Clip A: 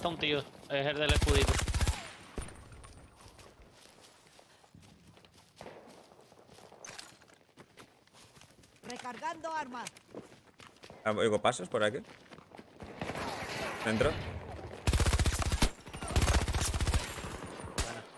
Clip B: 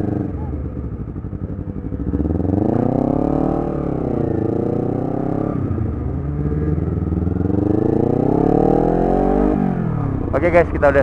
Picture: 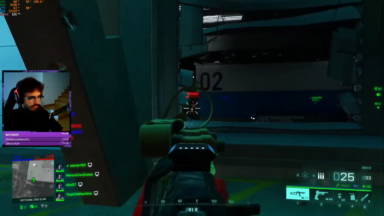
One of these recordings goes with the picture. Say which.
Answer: A